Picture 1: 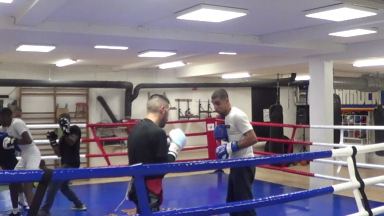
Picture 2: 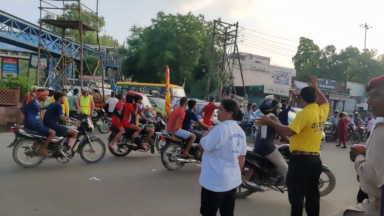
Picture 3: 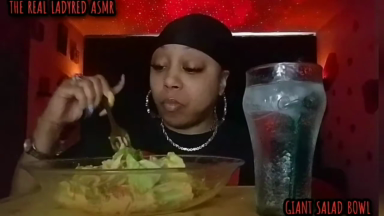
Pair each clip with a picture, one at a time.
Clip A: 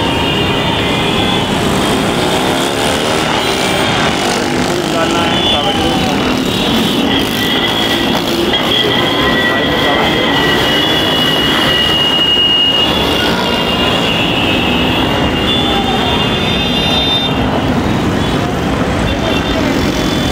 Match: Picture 2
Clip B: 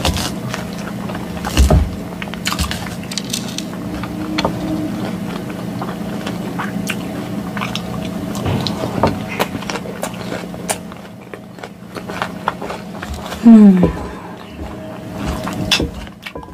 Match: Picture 3